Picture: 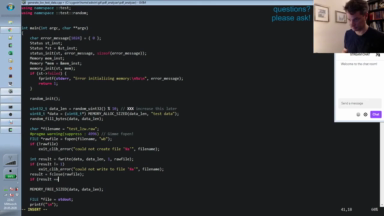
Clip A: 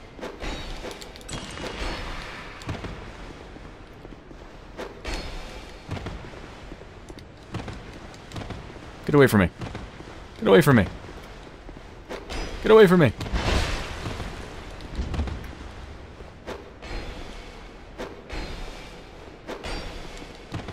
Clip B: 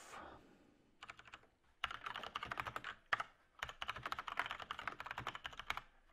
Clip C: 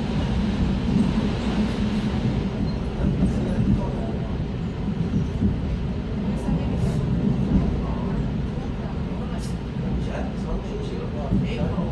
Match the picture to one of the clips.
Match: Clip B